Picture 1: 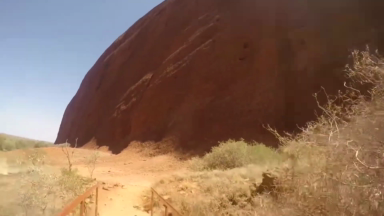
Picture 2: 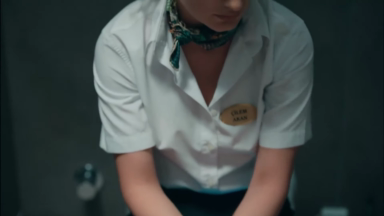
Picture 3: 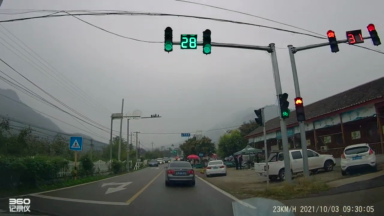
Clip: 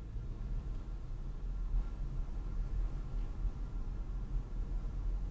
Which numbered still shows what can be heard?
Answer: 3